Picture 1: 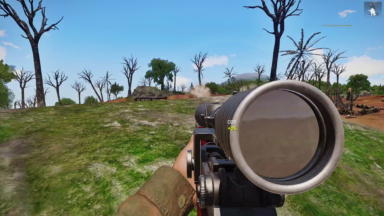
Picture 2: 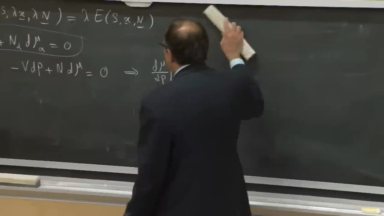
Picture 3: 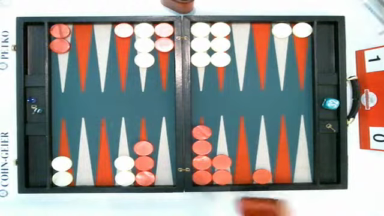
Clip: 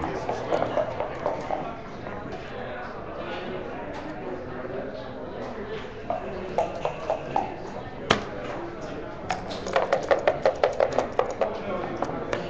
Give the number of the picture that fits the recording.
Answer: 3